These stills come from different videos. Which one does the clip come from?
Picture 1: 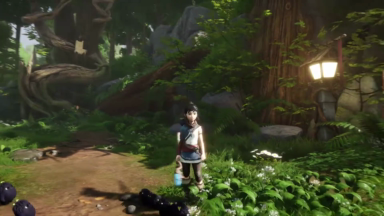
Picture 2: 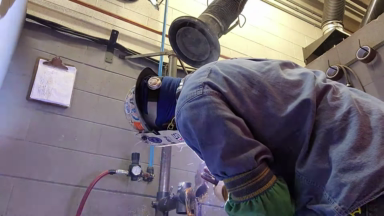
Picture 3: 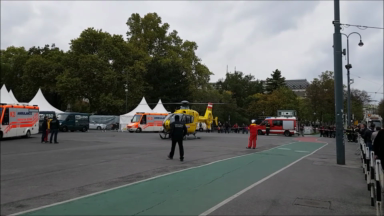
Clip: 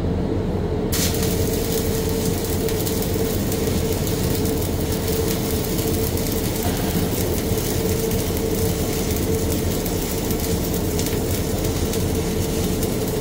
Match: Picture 2